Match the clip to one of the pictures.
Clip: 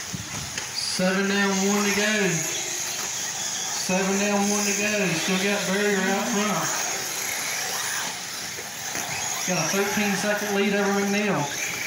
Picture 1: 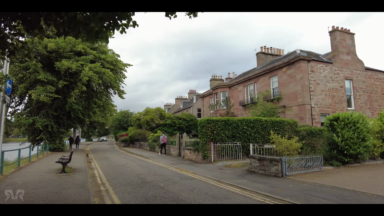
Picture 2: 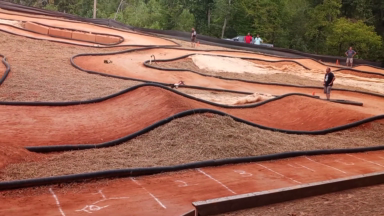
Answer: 2